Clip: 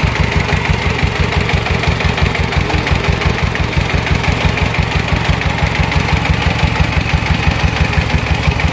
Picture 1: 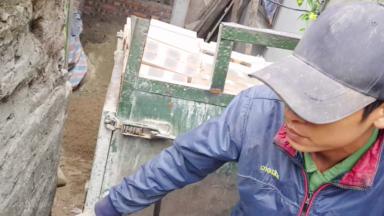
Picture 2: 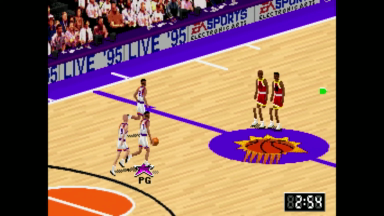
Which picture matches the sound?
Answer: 1